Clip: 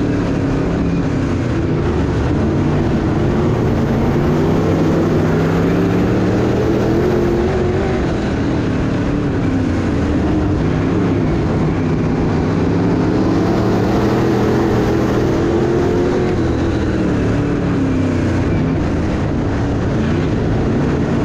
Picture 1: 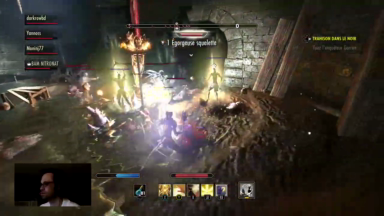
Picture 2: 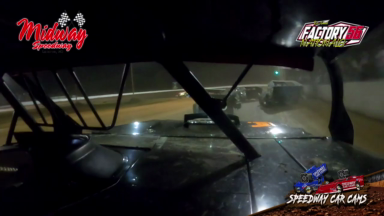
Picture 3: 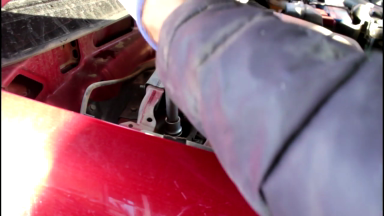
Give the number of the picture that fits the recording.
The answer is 2